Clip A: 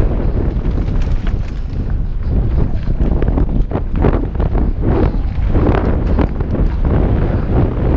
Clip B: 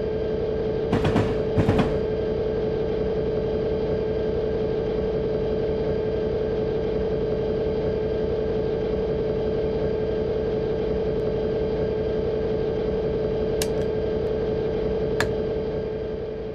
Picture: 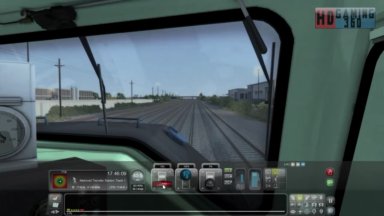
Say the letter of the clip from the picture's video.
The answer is B